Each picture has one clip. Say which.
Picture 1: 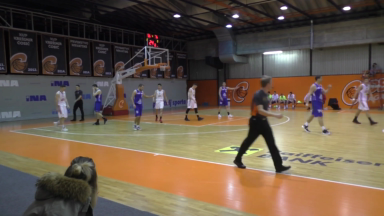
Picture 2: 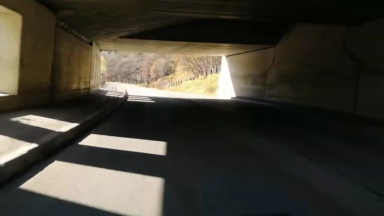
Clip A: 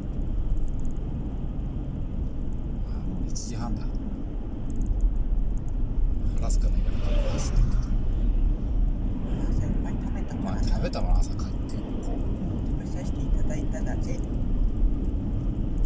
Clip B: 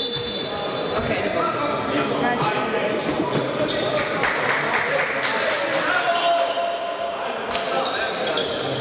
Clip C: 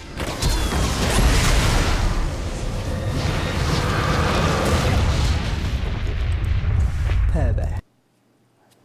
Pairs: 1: B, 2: A